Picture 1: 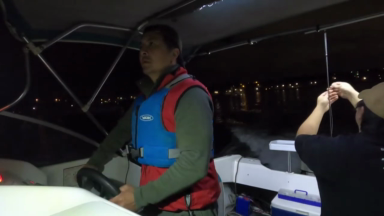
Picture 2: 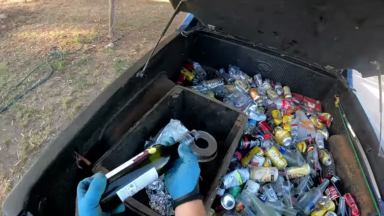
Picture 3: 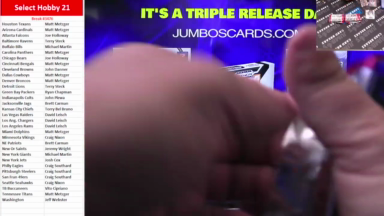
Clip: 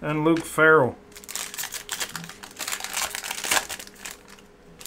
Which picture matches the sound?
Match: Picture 3